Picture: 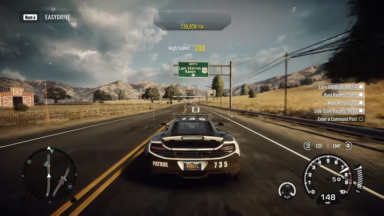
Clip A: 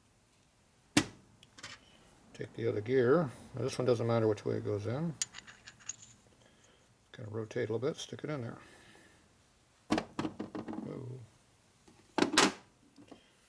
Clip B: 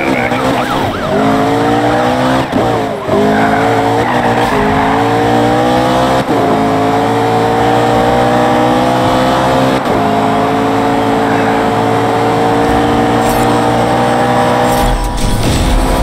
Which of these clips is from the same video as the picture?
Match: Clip B